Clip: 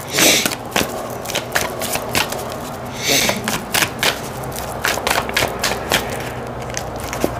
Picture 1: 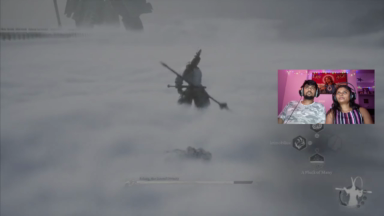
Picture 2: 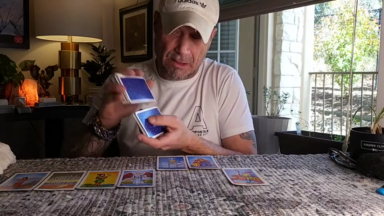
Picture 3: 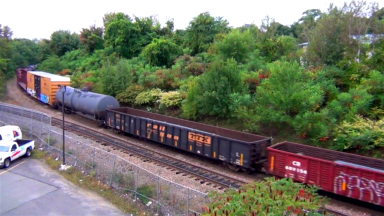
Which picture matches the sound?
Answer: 2